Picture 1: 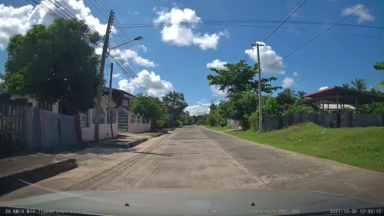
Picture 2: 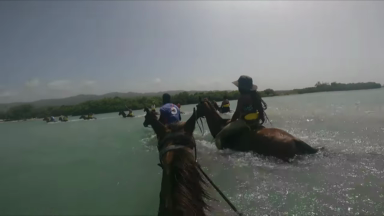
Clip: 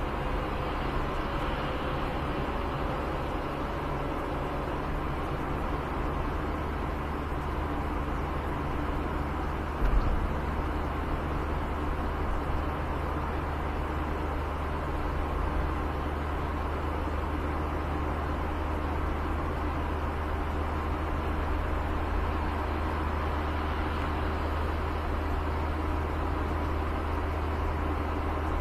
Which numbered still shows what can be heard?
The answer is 1